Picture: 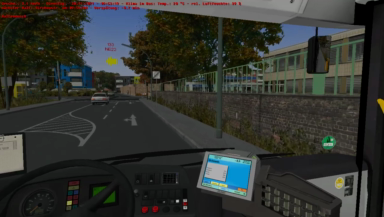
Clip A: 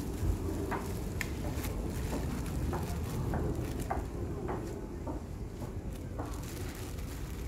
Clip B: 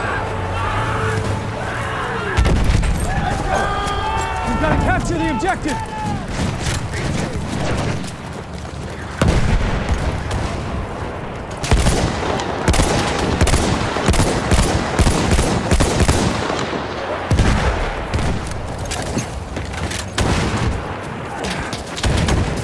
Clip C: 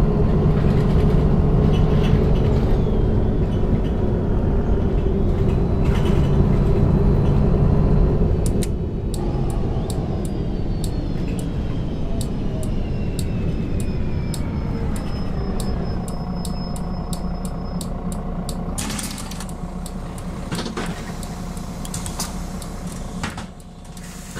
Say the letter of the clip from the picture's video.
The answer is C